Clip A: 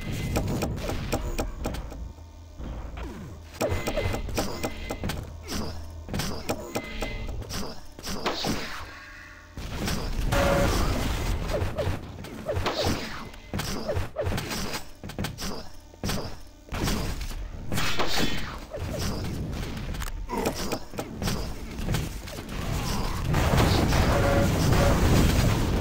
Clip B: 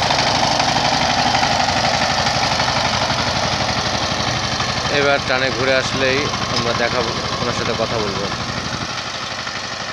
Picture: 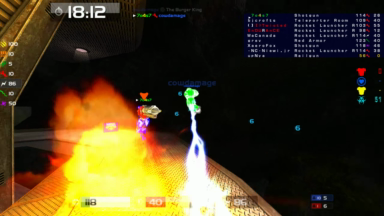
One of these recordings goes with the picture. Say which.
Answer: A